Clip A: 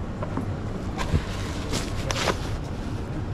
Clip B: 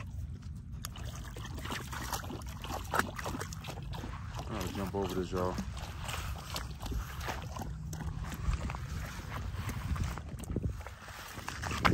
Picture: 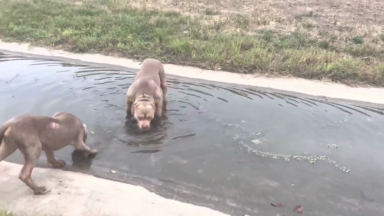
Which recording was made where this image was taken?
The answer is B